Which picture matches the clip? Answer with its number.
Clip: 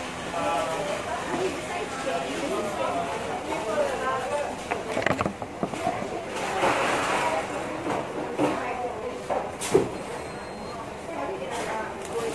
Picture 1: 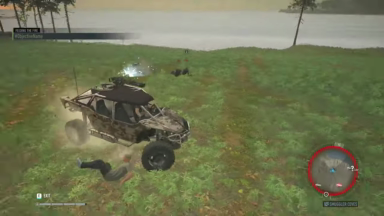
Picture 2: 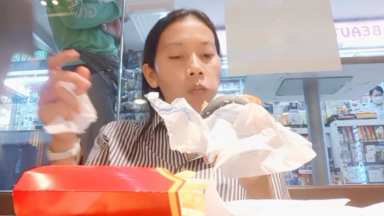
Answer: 2